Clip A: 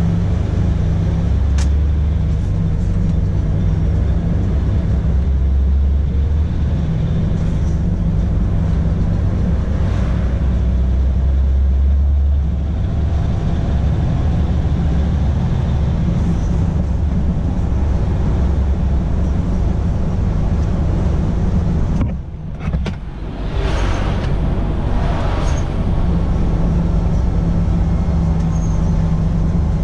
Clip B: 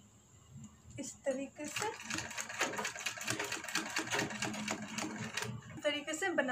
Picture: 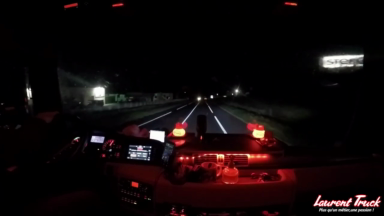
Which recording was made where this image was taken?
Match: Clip A